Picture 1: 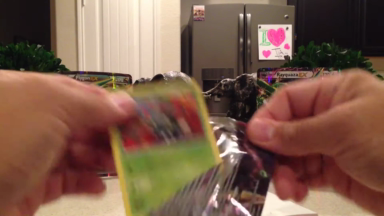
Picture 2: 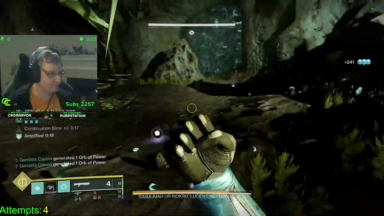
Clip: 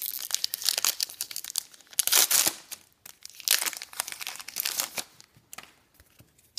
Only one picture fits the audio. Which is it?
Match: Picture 1